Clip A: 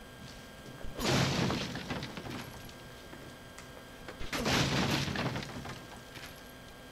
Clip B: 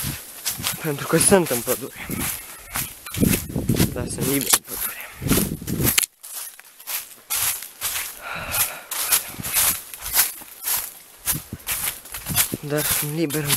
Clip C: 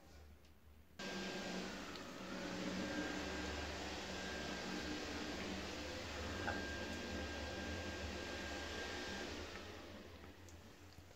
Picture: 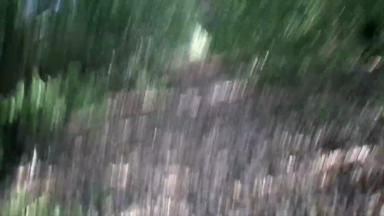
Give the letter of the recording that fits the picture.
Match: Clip B